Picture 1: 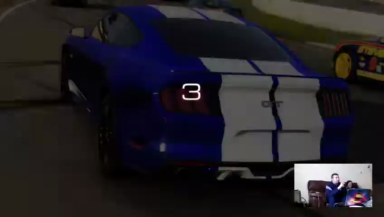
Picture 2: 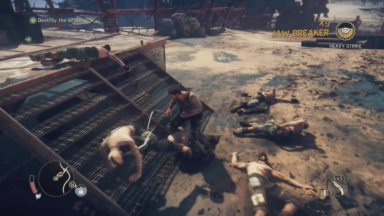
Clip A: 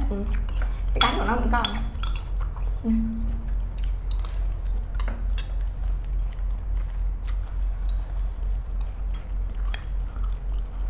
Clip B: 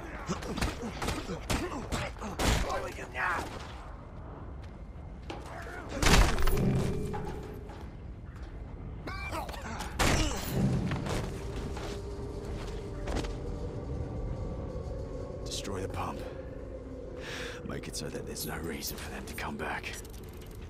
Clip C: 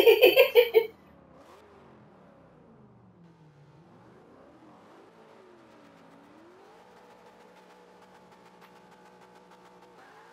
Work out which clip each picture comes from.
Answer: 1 C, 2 B